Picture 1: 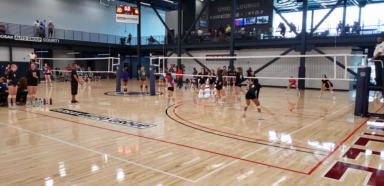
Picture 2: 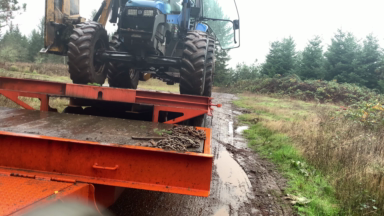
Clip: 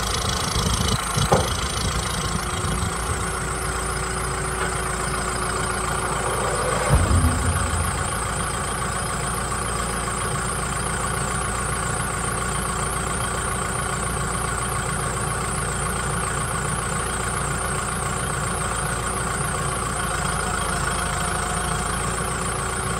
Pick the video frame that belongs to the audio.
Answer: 2